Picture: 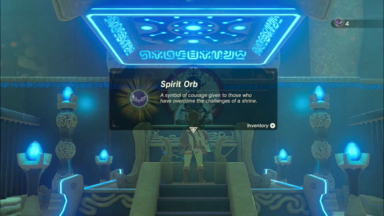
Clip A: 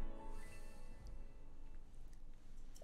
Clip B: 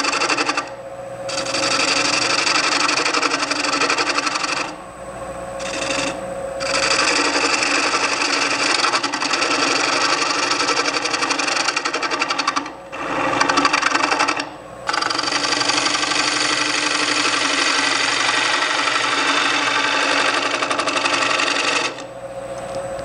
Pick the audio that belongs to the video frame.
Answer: A